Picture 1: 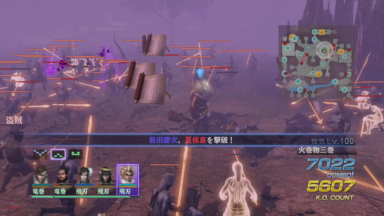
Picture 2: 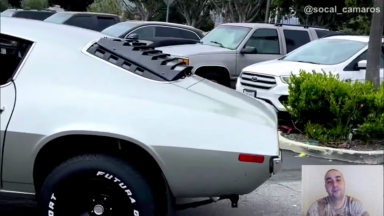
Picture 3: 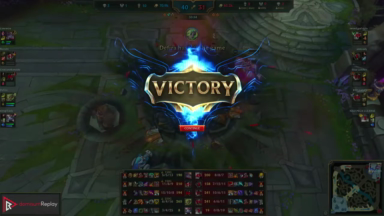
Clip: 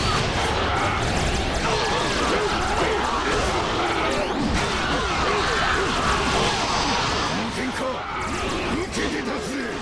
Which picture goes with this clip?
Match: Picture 1